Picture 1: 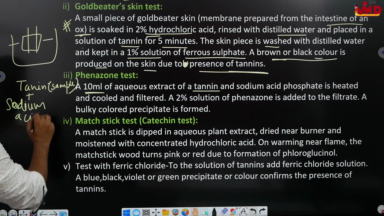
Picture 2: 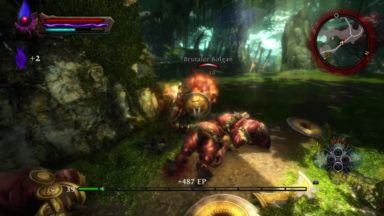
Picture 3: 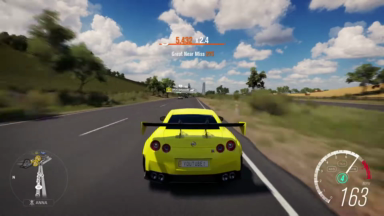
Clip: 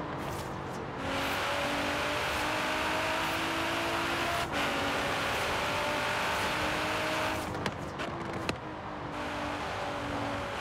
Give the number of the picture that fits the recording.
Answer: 3